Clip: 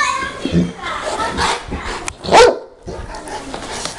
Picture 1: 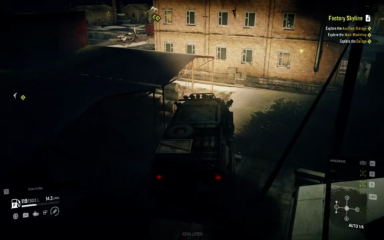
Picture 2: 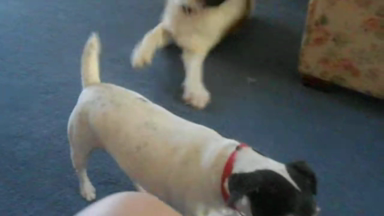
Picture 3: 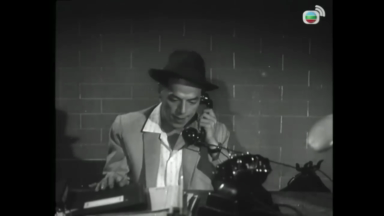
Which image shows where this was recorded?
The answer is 2